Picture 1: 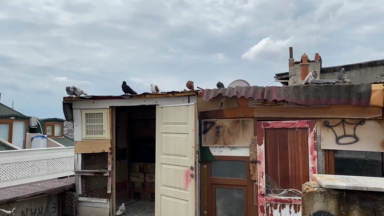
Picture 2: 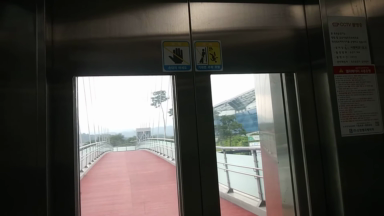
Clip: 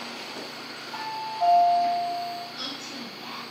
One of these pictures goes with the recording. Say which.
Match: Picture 2